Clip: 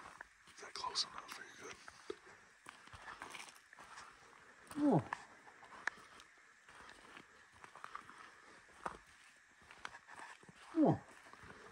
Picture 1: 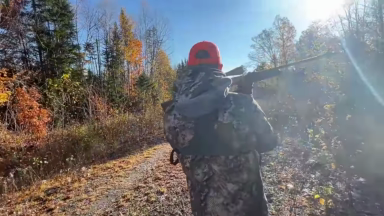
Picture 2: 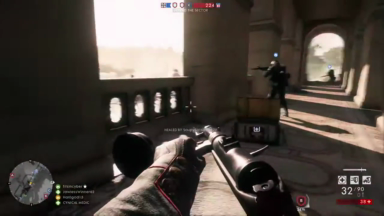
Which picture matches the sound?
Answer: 1